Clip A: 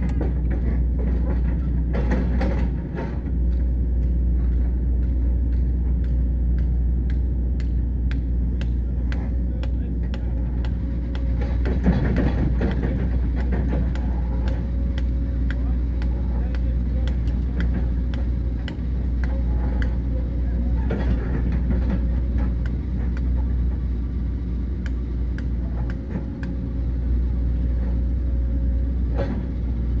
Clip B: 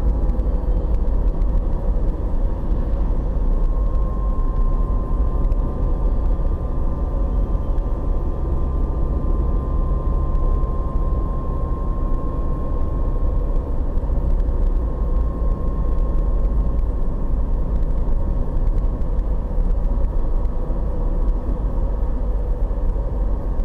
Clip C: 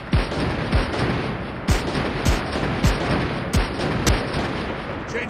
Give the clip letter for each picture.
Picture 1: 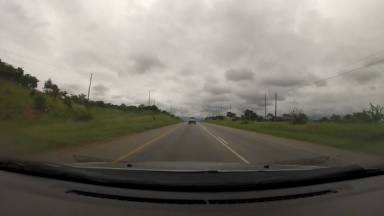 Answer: B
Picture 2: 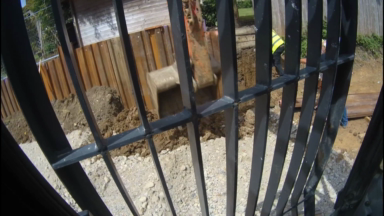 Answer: A